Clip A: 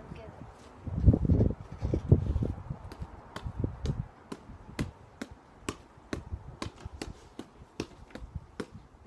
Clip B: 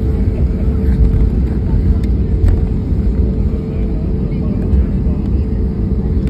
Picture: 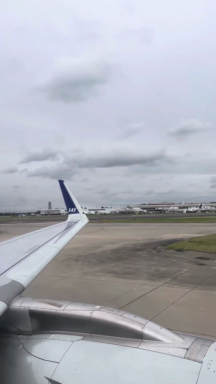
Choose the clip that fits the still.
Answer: B